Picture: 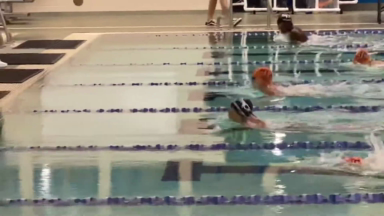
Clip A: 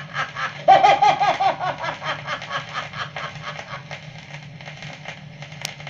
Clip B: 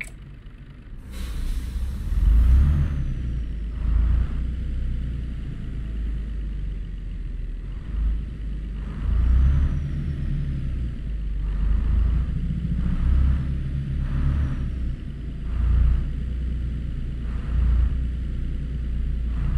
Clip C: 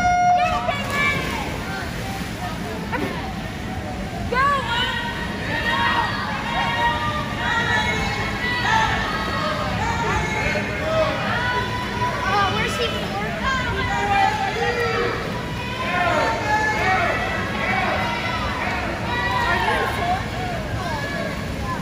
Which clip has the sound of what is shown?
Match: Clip C